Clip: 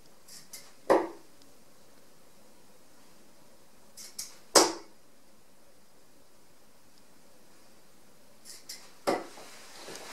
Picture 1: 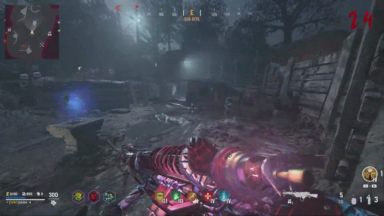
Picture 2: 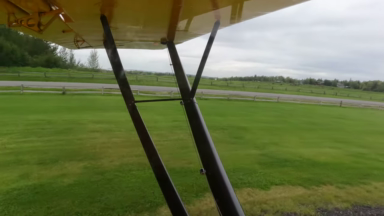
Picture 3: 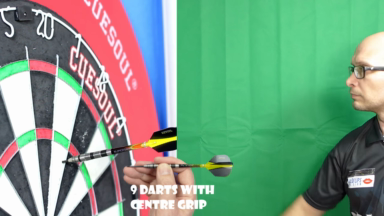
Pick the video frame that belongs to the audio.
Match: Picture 3